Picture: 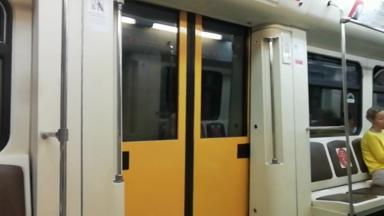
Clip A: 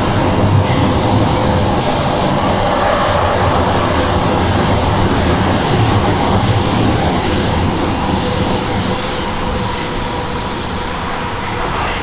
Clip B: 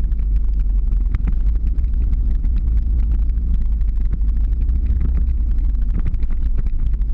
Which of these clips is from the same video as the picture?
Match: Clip A